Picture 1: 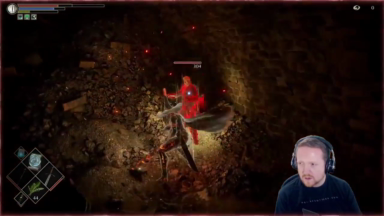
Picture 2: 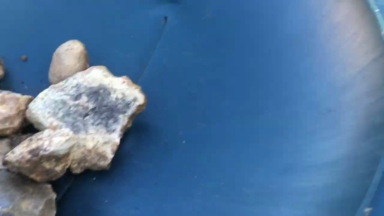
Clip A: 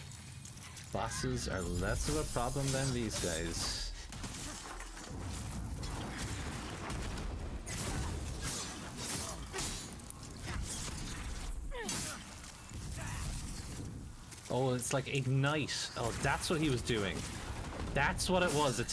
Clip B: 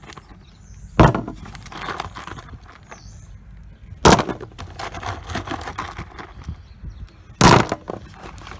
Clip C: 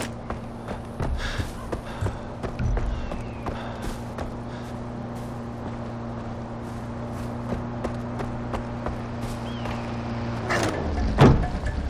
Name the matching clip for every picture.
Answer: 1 A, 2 B